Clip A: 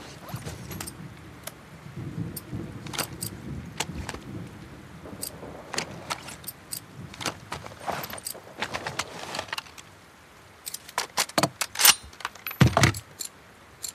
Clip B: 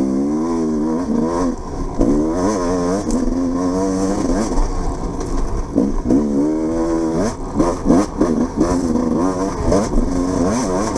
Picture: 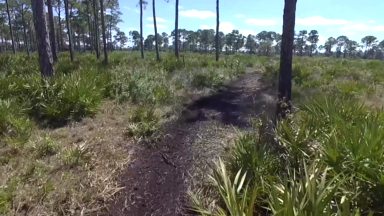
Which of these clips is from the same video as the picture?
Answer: B